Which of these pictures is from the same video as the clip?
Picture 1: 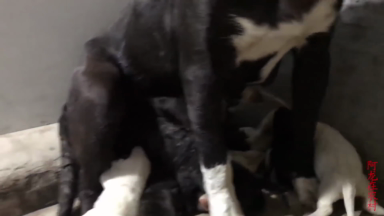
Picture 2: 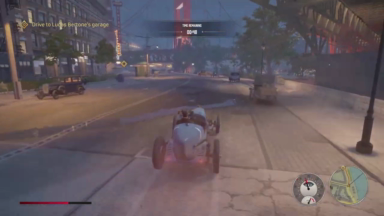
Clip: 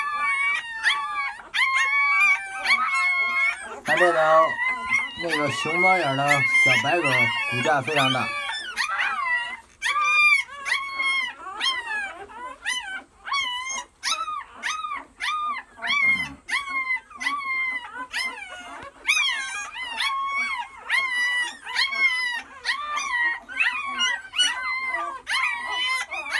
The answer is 1